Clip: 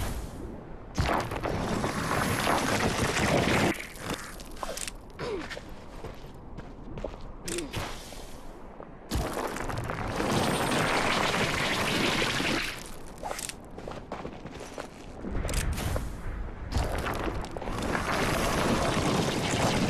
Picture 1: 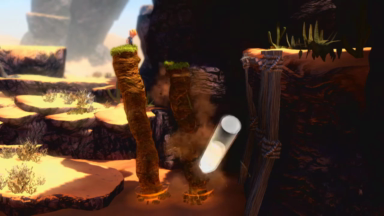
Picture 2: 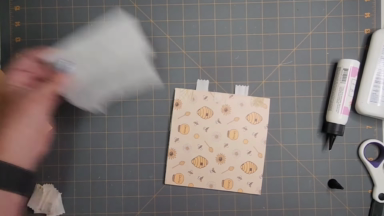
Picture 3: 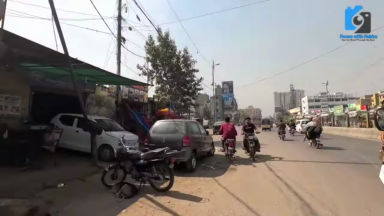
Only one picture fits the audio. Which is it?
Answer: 1